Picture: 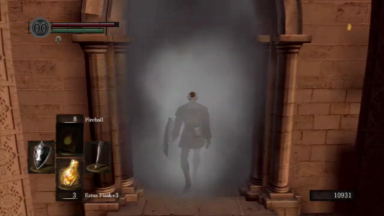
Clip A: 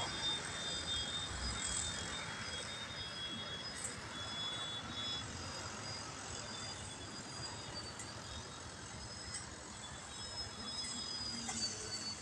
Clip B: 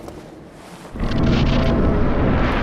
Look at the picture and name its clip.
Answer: B